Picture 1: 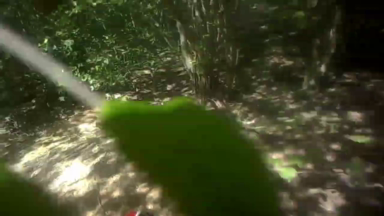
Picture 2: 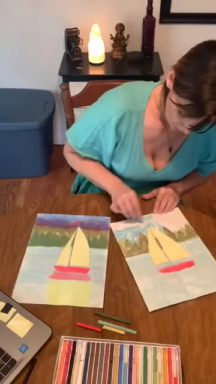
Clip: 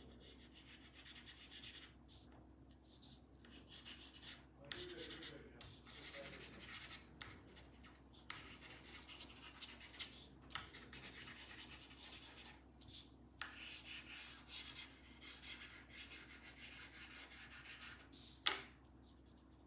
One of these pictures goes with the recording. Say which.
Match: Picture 2